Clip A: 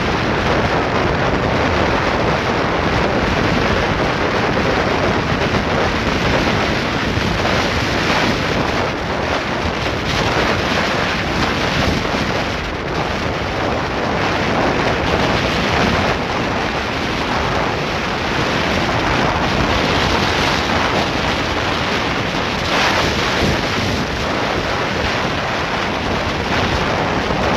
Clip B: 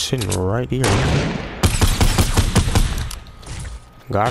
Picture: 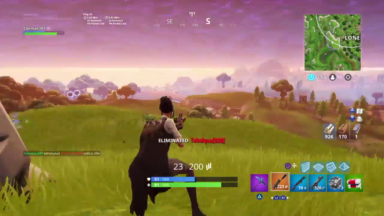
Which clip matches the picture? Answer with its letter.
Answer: B